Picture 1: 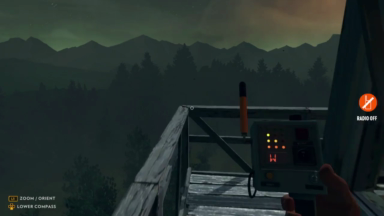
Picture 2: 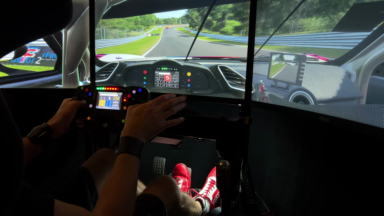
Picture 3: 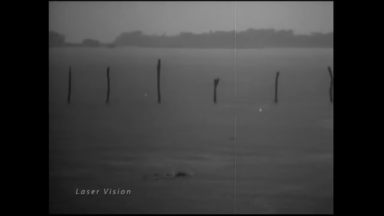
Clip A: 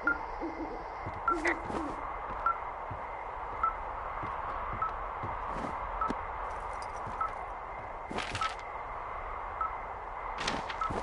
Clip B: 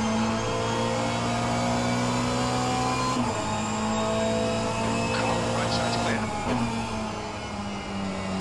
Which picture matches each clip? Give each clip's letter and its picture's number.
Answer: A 1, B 2